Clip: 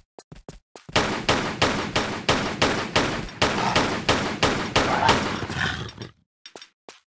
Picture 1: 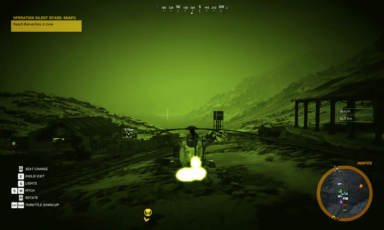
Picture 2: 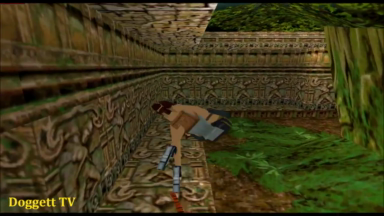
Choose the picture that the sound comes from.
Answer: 2